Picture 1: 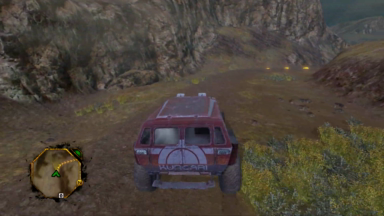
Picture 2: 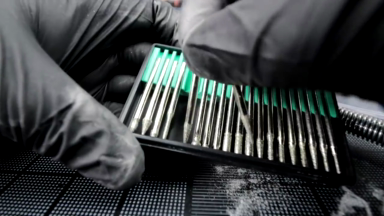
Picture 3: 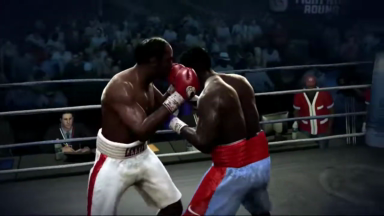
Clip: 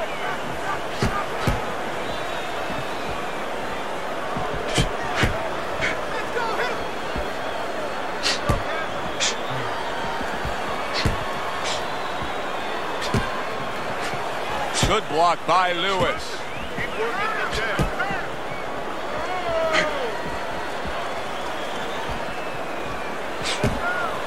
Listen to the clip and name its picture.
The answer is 3